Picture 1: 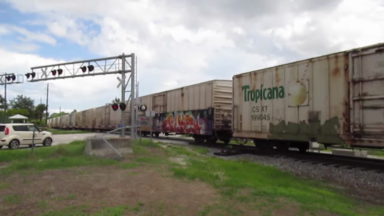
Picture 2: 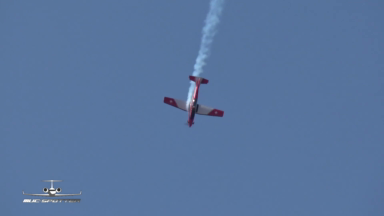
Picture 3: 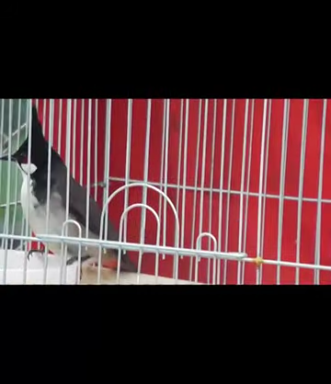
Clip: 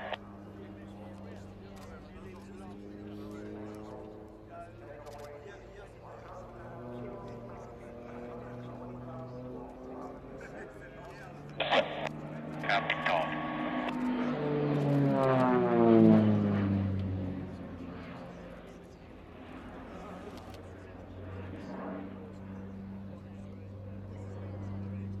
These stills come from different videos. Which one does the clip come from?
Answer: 2